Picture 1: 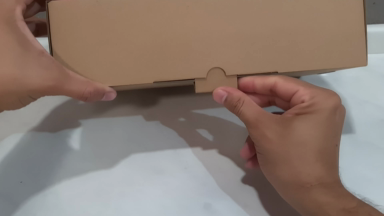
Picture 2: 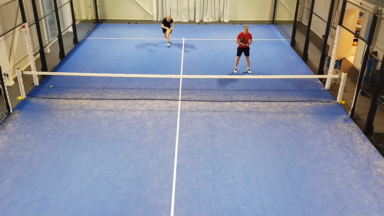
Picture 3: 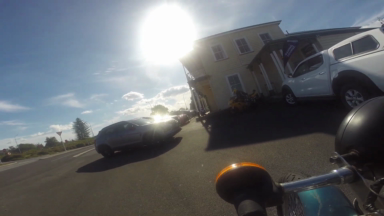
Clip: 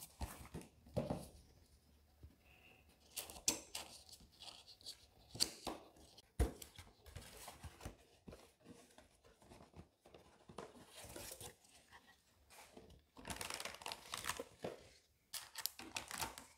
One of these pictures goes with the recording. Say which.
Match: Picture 1